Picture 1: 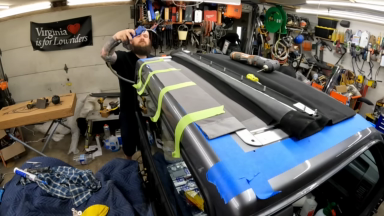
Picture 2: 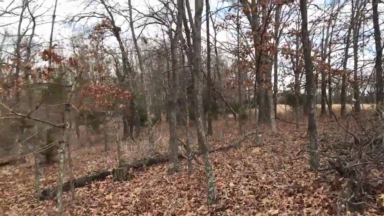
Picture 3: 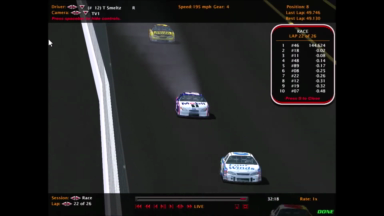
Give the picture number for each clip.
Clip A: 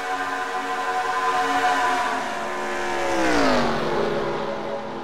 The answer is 3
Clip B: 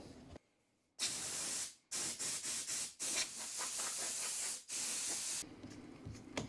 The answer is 1